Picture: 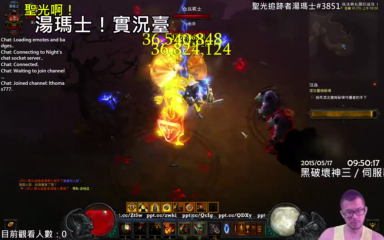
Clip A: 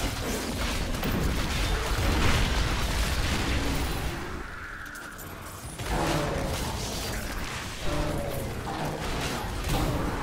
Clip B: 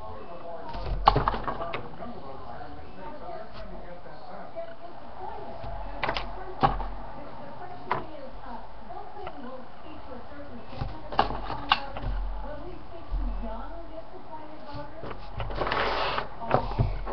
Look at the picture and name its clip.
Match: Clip A